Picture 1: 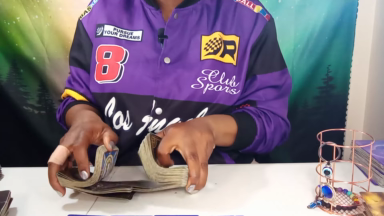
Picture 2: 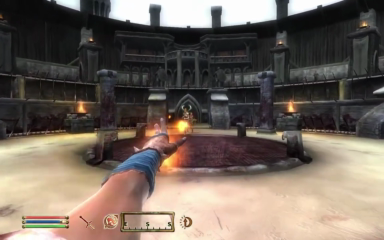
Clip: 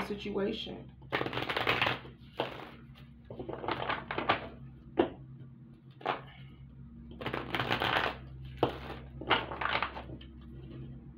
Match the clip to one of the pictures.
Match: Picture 1